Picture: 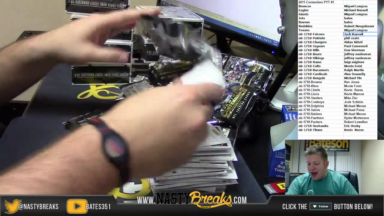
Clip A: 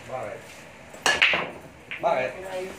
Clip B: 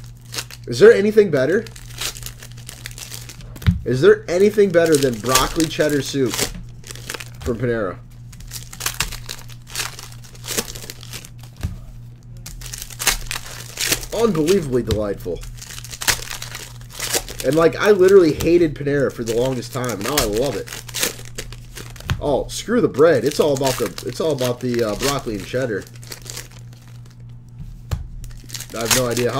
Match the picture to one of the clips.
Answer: B